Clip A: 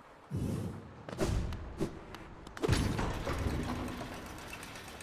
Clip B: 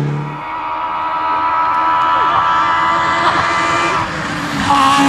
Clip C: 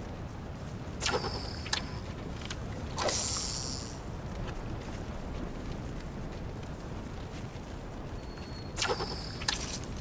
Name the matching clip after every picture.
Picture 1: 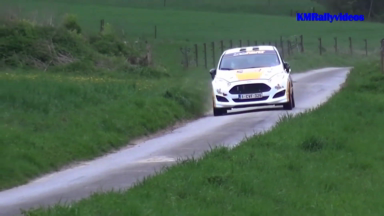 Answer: B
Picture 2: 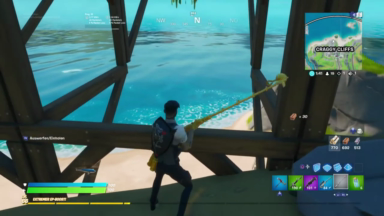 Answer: C